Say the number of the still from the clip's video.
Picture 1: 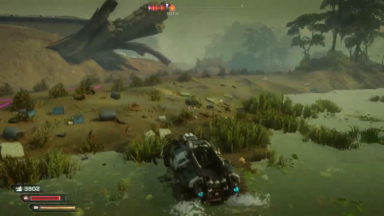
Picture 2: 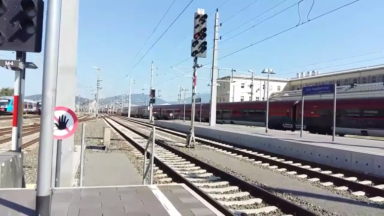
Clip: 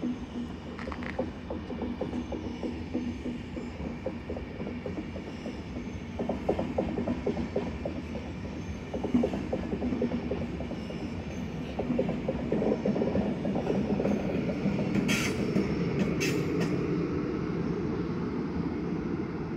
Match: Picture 2